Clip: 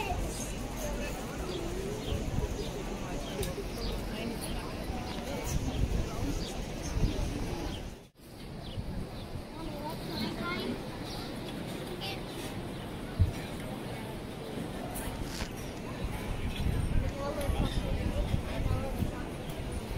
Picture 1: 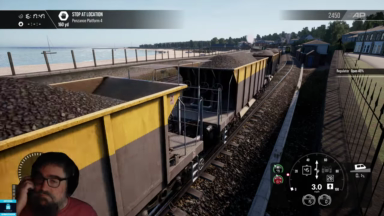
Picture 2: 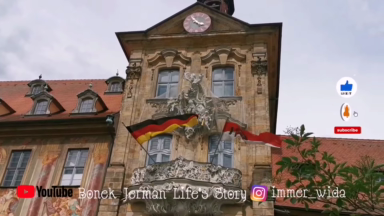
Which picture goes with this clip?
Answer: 2